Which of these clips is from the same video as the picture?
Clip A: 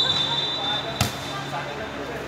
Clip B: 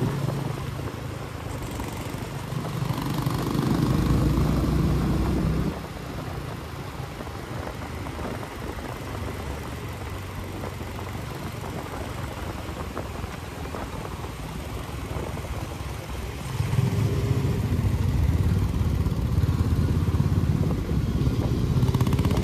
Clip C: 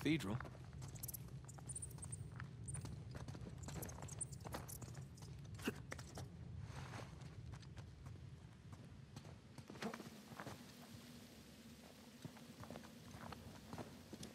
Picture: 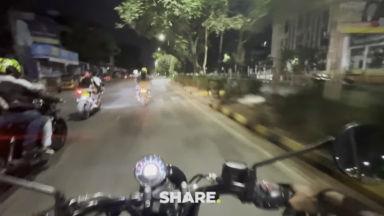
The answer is B